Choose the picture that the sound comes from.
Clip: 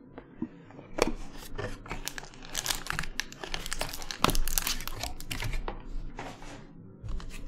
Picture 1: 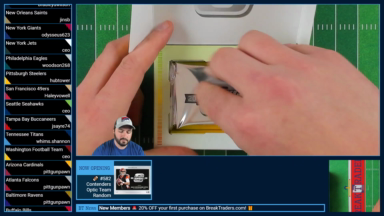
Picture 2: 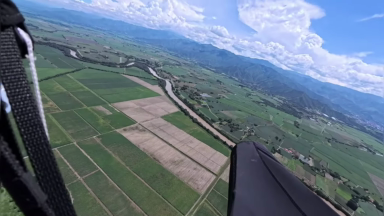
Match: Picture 1